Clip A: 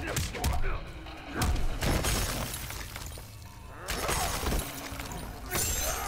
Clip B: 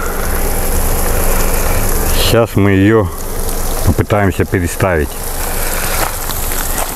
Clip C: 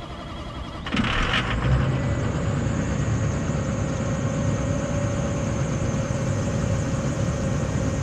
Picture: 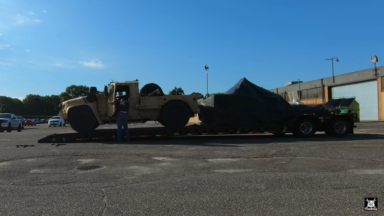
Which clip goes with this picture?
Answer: C